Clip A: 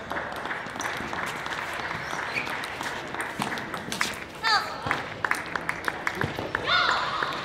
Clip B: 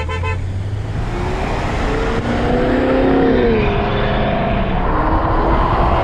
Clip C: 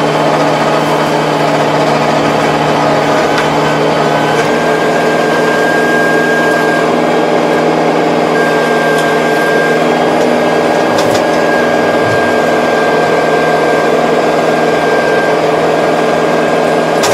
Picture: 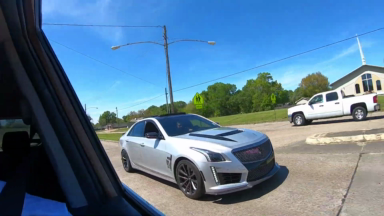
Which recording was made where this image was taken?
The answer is B